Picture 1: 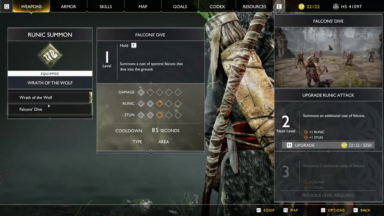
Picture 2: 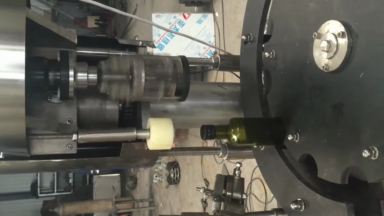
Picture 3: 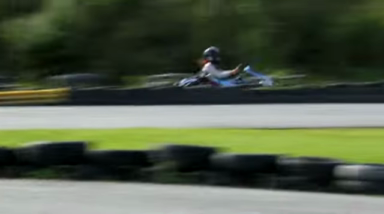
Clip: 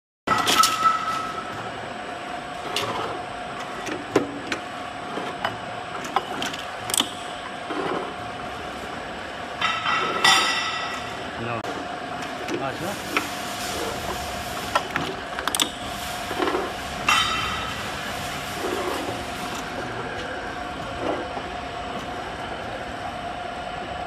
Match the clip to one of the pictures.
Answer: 2